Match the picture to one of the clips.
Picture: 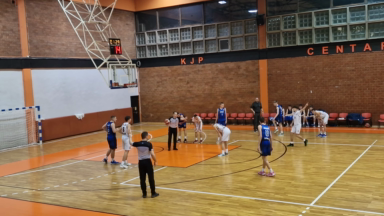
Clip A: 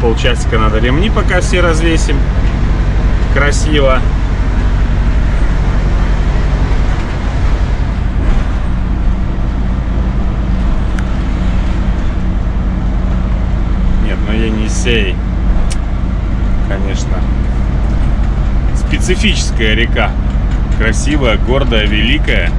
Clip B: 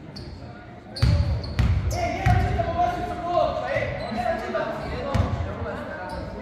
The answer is B